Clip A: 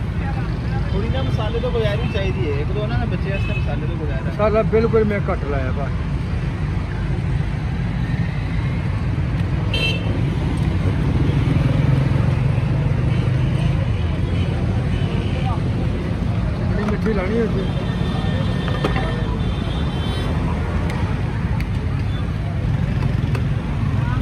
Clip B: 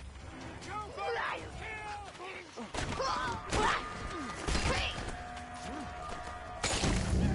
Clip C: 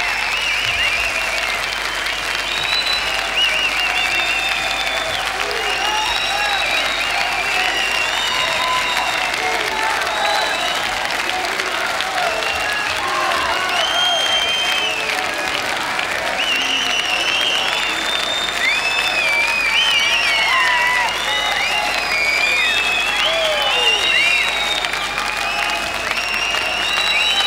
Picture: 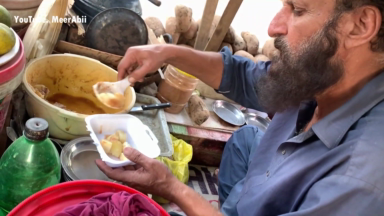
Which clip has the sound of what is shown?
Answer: A